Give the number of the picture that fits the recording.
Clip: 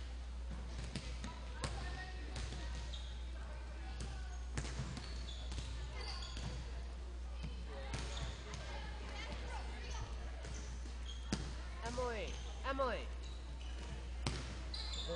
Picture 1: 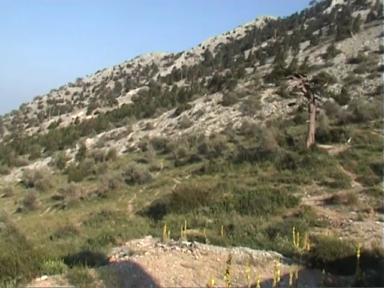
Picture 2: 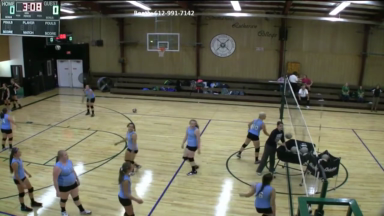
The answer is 2